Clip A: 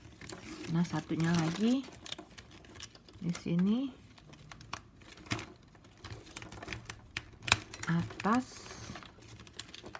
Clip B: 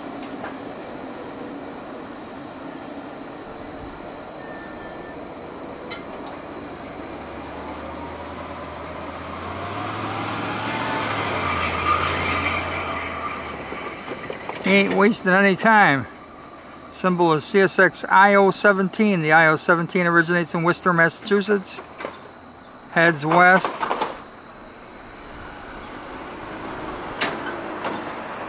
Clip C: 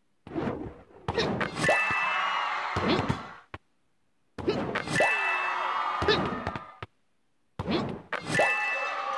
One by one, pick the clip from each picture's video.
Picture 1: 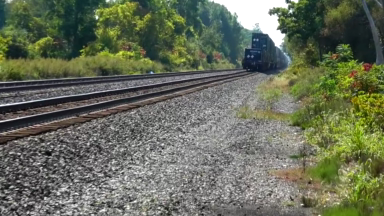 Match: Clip B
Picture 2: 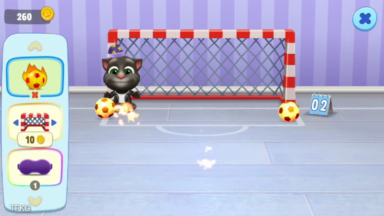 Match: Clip C